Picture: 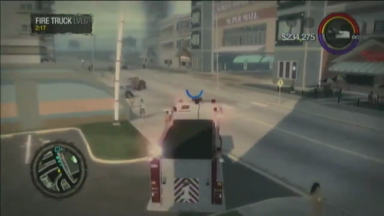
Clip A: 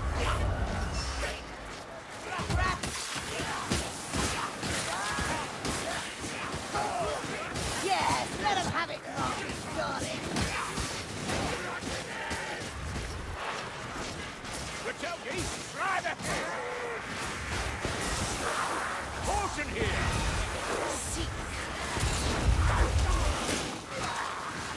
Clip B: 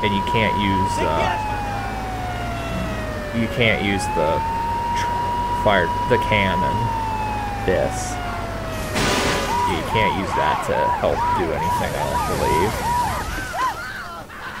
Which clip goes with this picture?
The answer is B